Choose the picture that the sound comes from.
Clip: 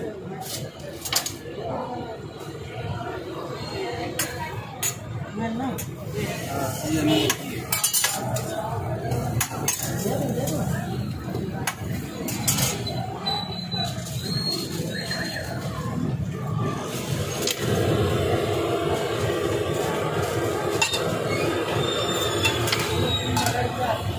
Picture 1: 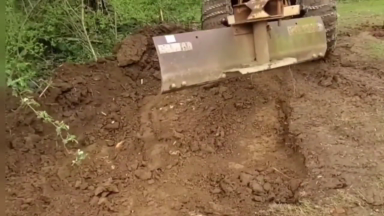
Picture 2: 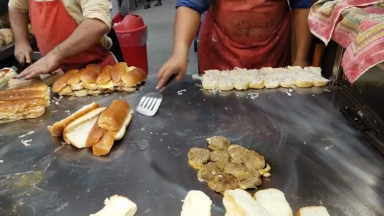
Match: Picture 2